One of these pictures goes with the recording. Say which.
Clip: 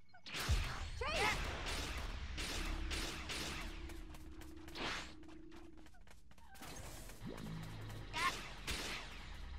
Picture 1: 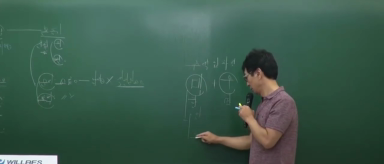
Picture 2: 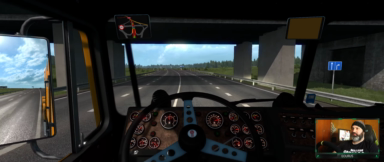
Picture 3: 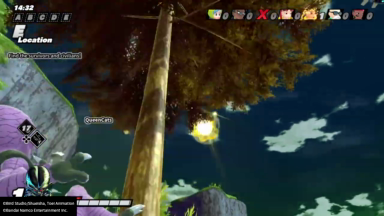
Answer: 3